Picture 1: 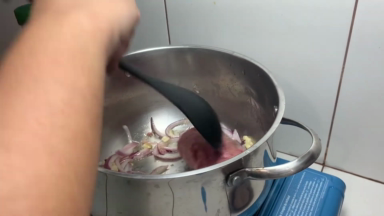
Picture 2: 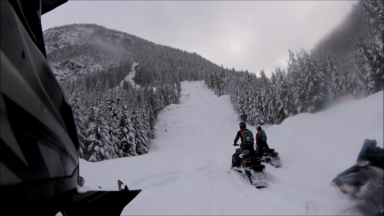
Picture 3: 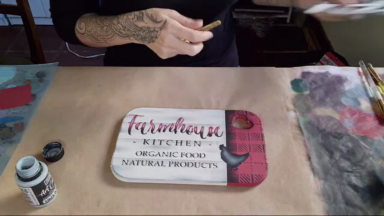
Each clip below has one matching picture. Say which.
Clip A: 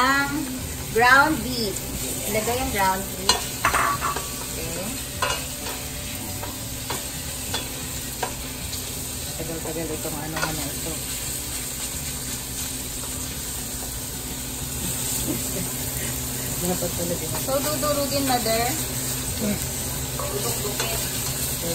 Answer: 1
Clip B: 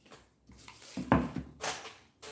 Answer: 3